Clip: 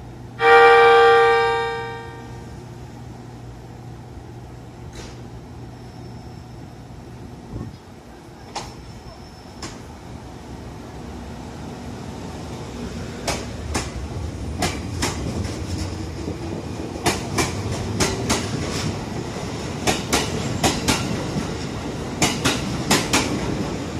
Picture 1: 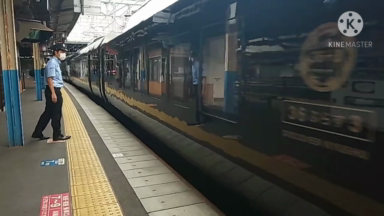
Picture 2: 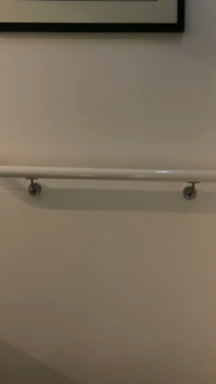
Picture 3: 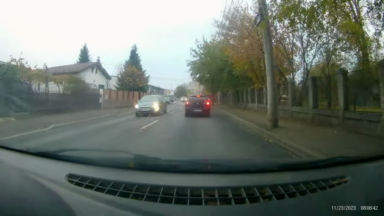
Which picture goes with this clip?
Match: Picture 1